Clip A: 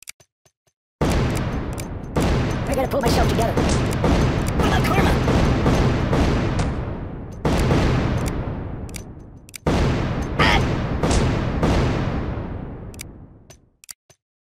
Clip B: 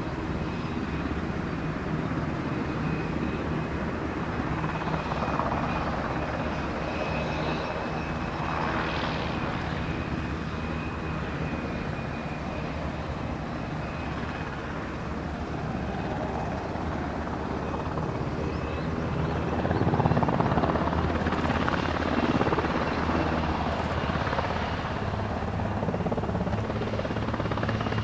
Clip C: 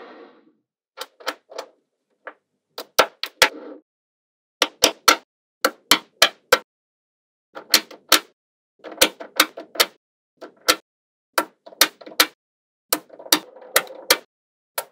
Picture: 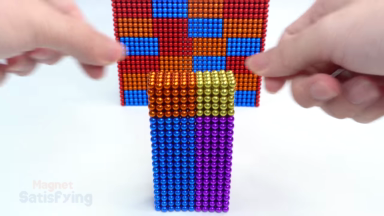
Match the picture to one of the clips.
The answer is C